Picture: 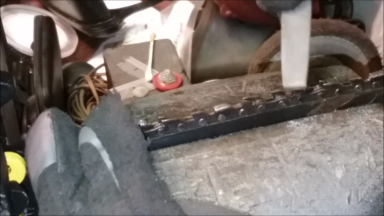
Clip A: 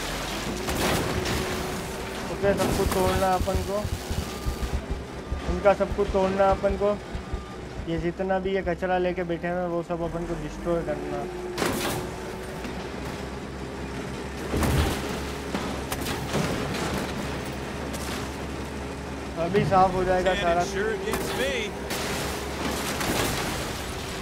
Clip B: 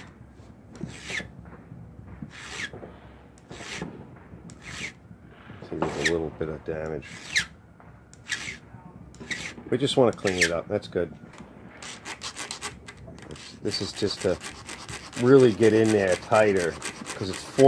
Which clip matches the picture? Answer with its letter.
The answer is B